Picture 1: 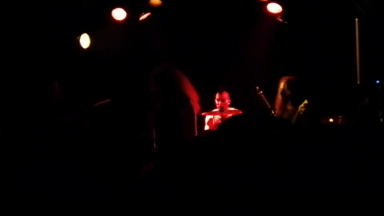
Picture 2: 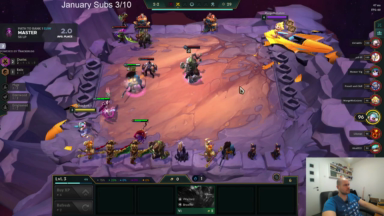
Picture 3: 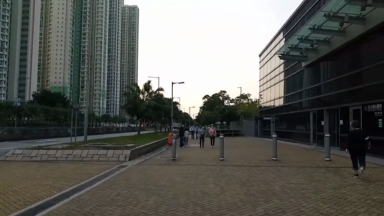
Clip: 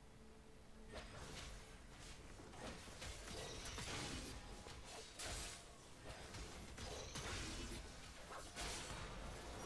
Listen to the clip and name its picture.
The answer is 2